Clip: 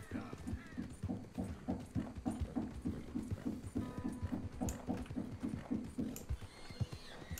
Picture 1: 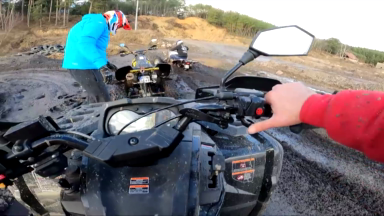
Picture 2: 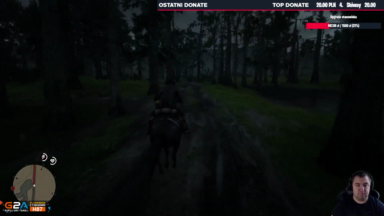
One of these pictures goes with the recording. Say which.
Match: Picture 2